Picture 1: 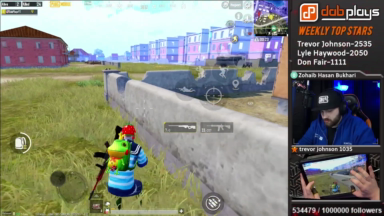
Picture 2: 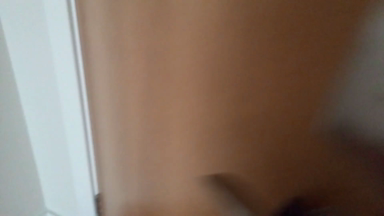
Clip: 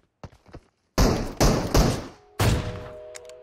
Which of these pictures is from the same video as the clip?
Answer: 1